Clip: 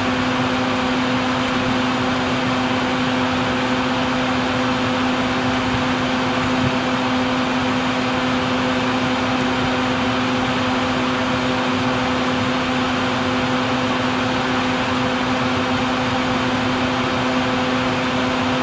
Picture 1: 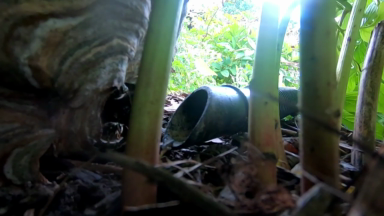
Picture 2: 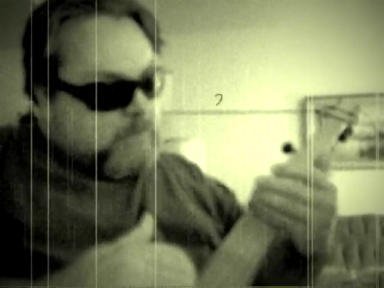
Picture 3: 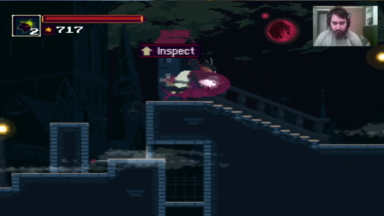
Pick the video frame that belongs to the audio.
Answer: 1